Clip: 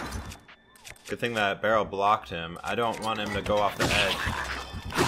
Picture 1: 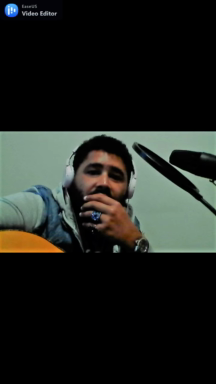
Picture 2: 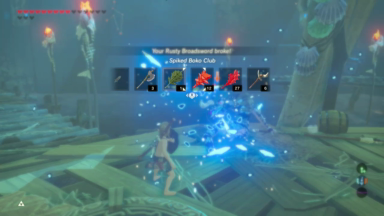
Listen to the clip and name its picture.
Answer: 2